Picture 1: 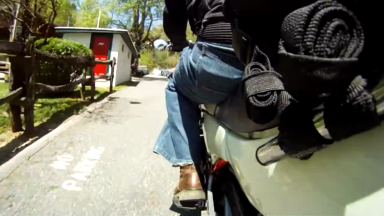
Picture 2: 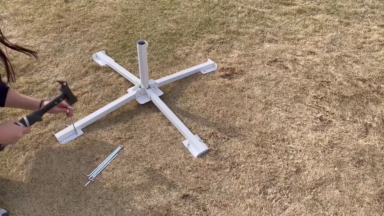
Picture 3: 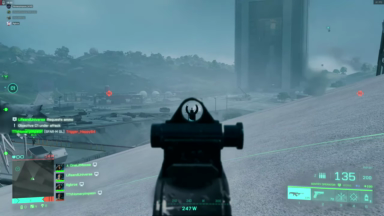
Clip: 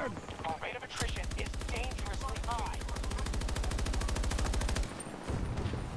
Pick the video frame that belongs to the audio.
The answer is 3